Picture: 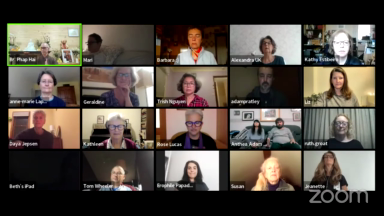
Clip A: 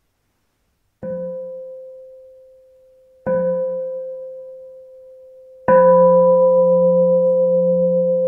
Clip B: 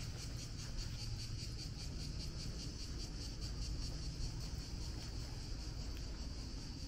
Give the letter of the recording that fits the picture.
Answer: A